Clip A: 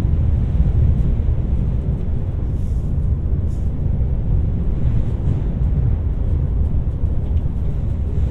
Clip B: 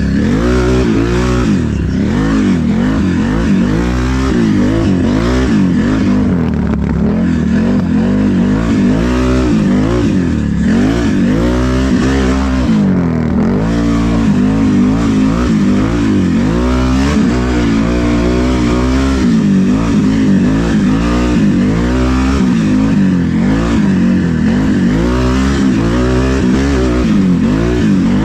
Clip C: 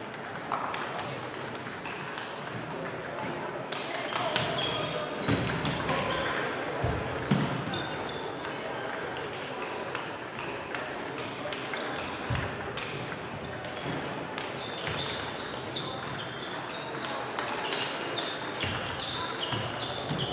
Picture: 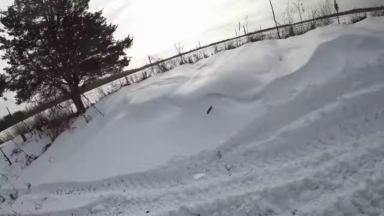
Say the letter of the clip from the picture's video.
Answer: B